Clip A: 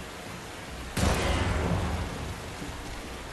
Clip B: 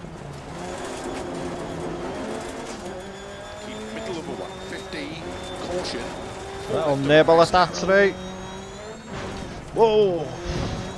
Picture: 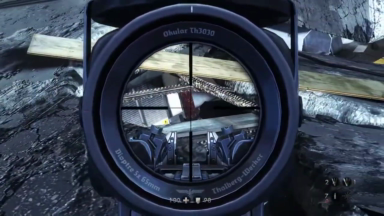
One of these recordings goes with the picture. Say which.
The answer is A